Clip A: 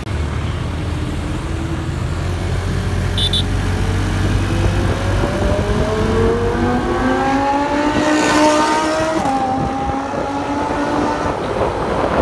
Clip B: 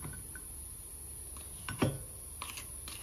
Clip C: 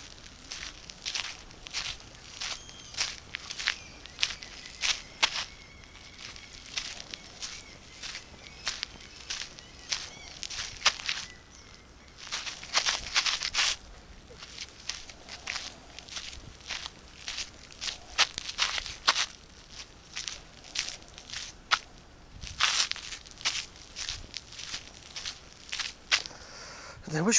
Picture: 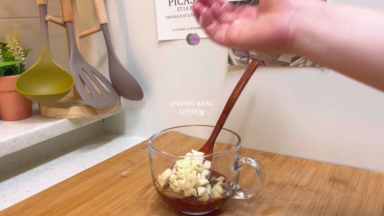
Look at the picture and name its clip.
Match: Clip B